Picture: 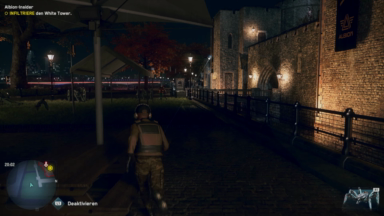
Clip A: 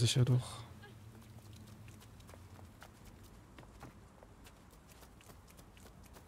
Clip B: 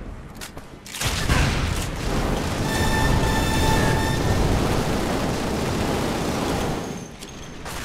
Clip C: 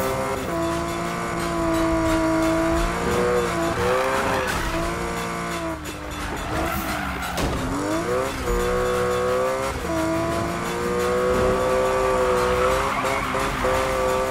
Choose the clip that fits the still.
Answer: A